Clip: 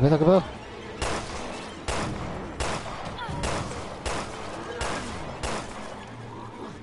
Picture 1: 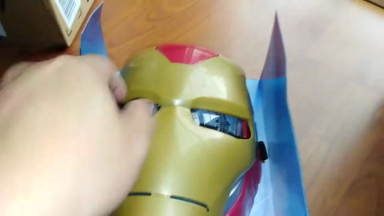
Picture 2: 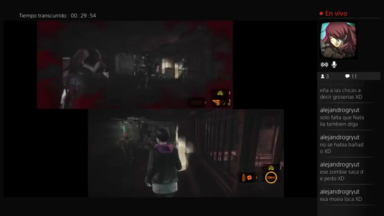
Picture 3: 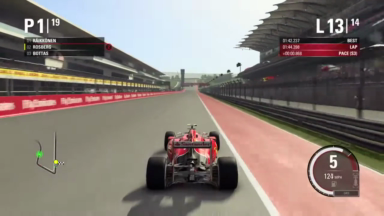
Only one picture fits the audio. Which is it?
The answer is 2